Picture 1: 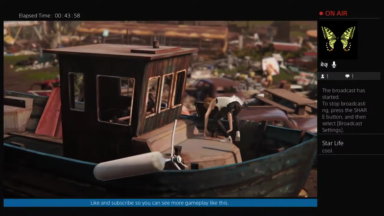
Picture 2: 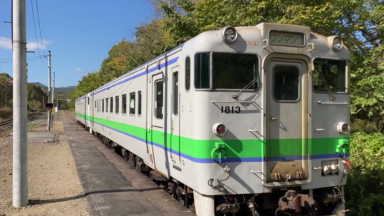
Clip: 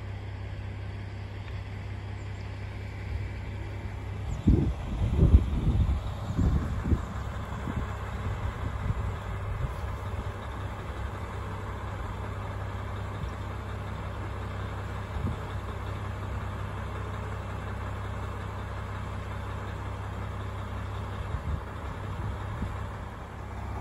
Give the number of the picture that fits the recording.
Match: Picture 2